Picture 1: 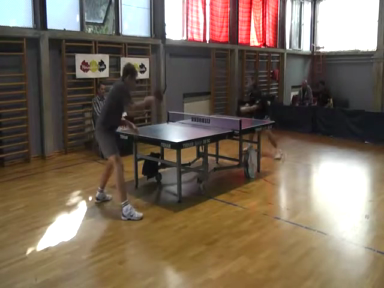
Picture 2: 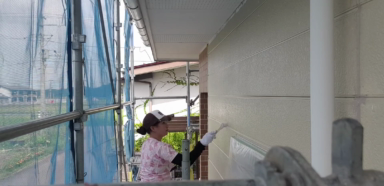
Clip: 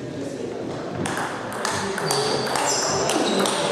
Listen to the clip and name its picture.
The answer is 1